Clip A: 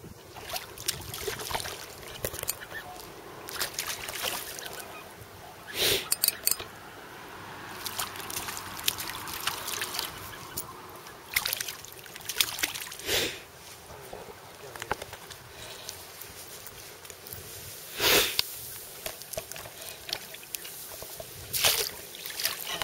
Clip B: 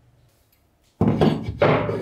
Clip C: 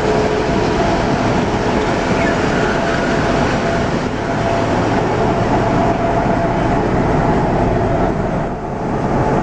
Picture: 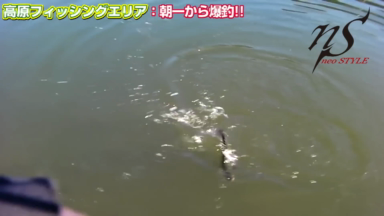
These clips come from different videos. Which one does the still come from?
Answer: A